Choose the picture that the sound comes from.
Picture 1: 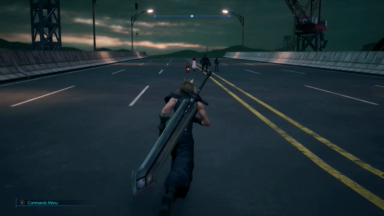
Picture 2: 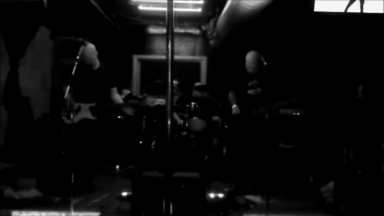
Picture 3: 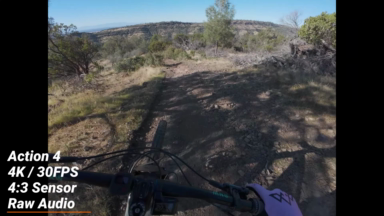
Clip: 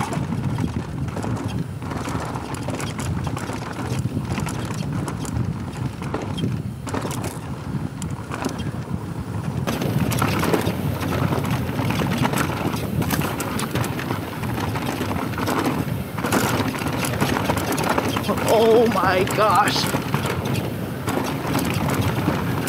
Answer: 3